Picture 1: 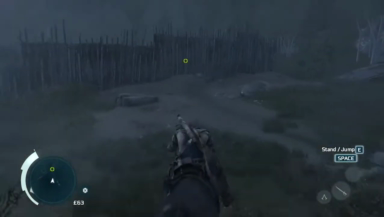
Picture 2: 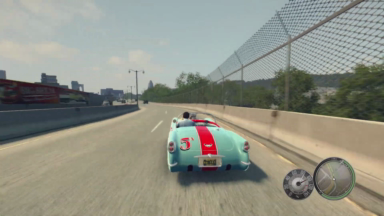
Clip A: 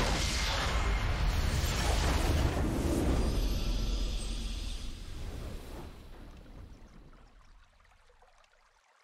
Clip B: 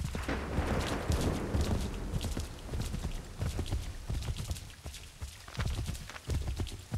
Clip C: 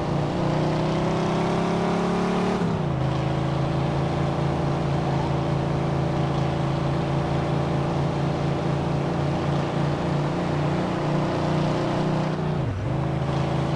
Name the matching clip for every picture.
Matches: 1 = B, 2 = C